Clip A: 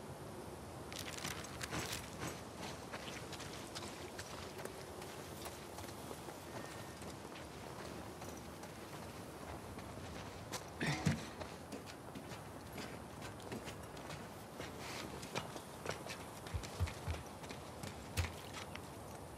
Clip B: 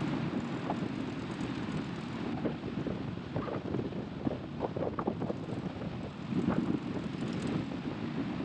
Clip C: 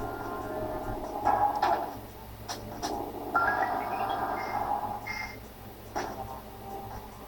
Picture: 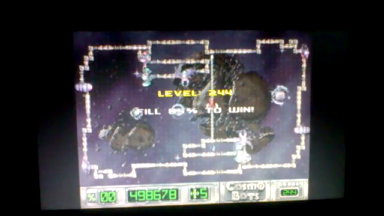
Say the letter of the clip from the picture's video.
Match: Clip C